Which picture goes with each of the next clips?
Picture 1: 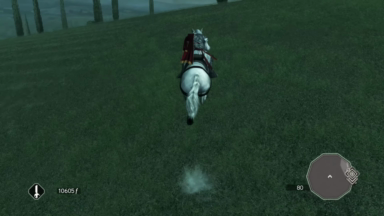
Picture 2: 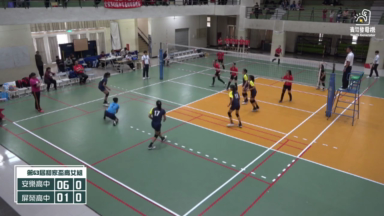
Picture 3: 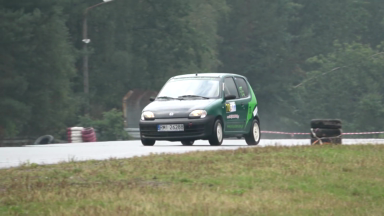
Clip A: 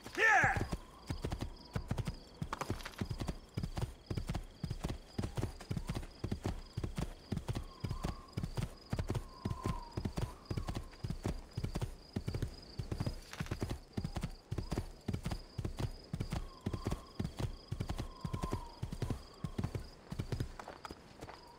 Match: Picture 1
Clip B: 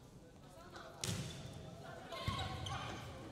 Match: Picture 2